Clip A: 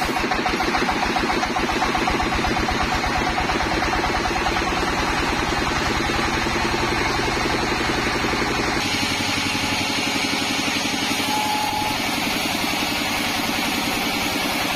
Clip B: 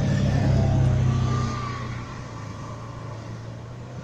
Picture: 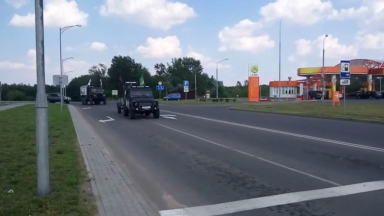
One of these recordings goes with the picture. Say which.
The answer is B